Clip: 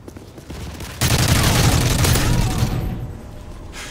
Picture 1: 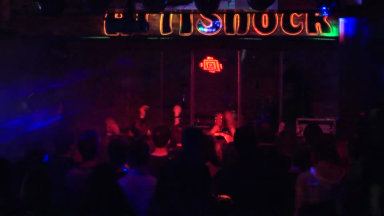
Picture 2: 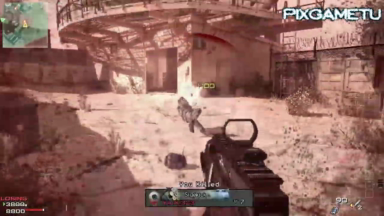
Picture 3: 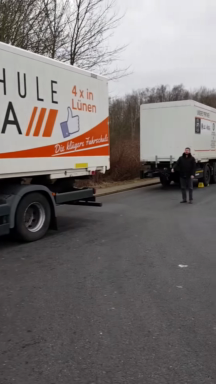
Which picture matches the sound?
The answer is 2